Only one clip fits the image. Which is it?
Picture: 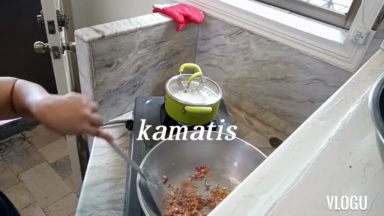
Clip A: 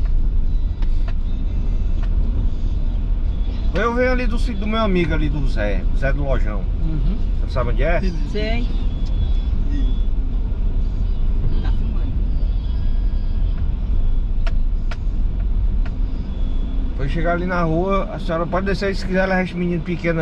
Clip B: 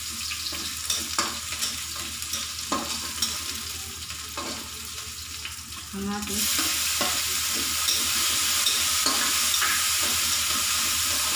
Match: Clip B